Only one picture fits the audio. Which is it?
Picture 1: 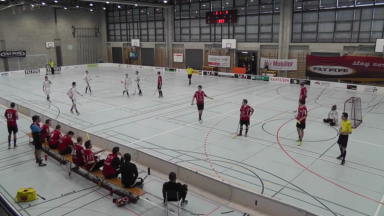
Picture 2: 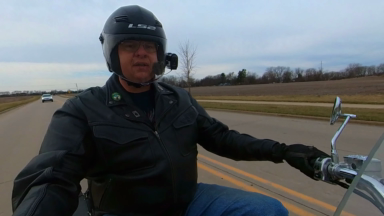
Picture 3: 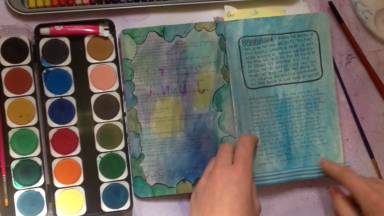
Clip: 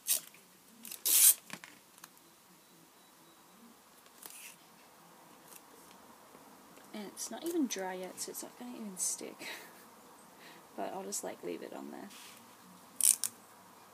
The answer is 3